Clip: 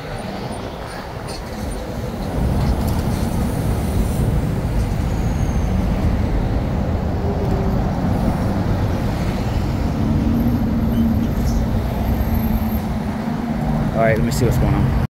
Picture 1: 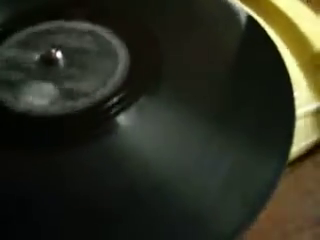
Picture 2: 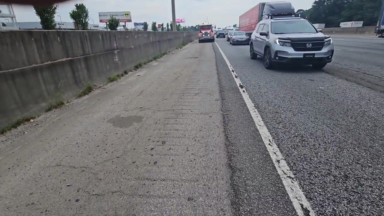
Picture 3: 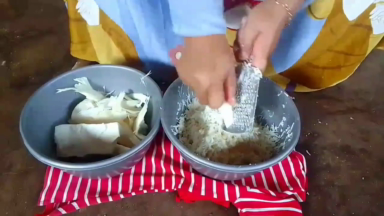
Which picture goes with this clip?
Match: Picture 2